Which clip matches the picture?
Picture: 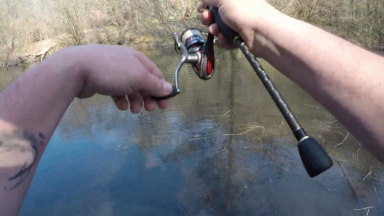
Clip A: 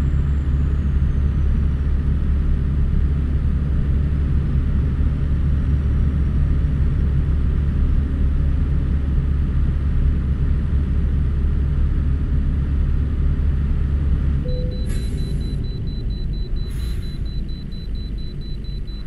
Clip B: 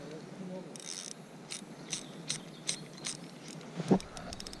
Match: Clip B